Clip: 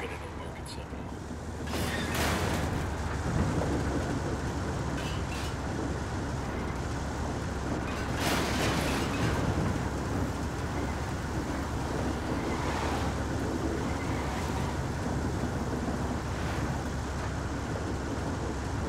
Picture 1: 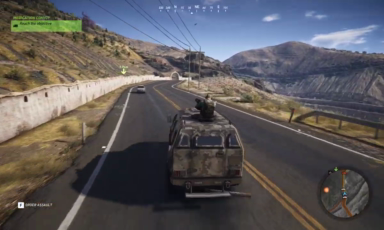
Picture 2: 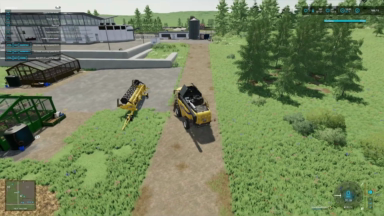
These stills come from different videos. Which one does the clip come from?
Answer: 1